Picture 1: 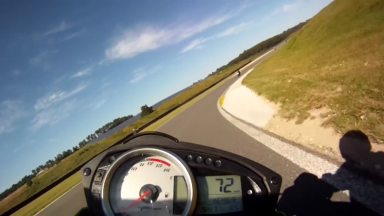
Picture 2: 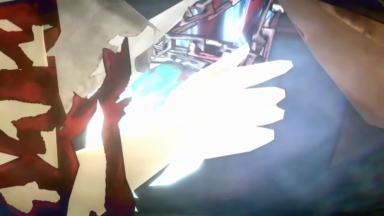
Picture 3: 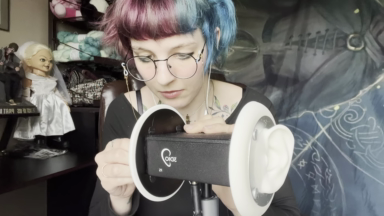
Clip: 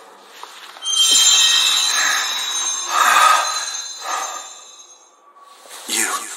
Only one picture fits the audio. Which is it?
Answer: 2